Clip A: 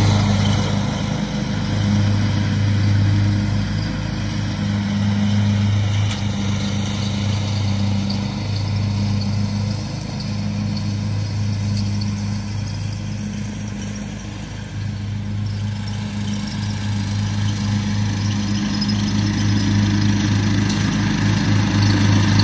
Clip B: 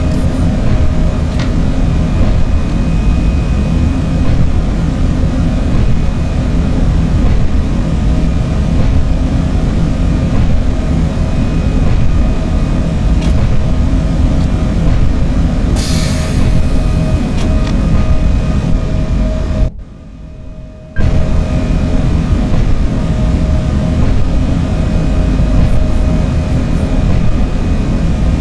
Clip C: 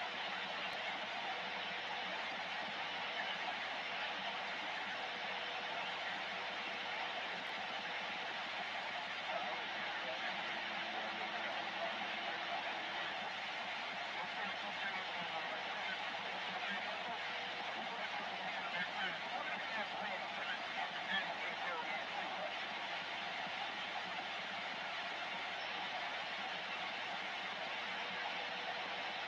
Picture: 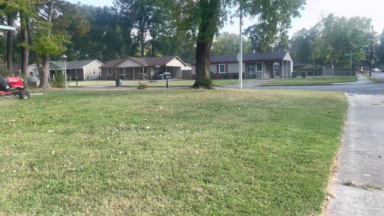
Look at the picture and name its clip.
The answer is A